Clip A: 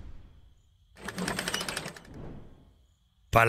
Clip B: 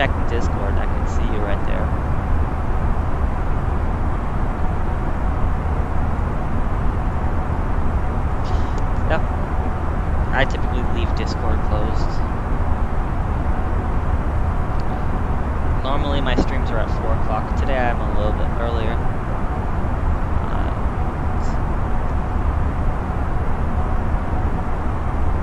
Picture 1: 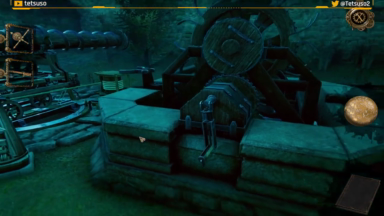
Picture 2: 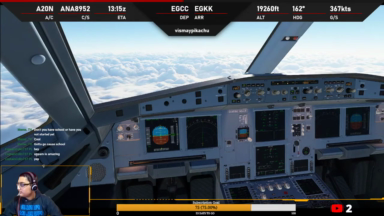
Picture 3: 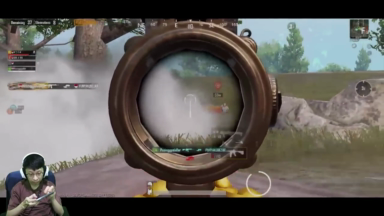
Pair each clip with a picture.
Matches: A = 1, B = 2